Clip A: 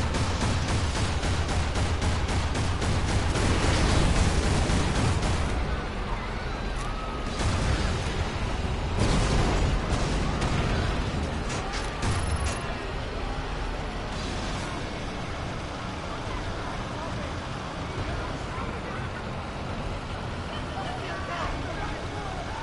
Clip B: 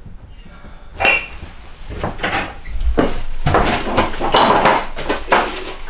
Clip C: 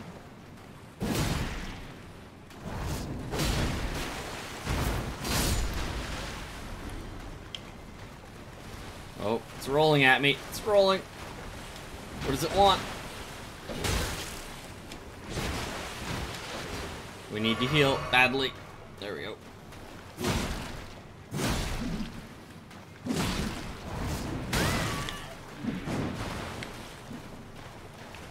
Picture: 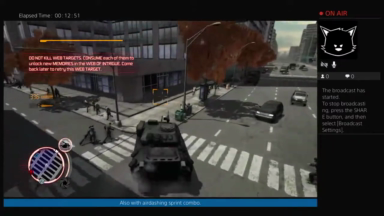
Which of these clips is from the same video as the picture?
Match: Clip A